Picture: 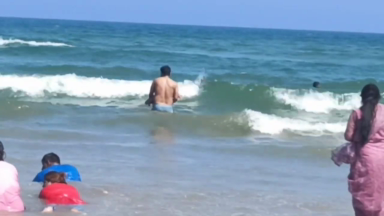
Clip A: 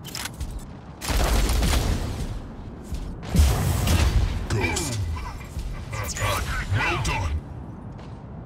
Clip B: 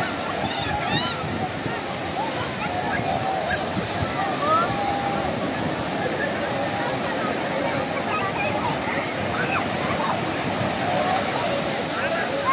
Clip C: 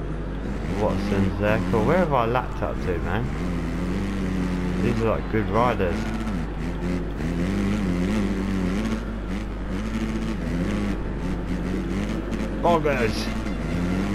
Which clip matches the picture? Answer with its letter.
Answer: B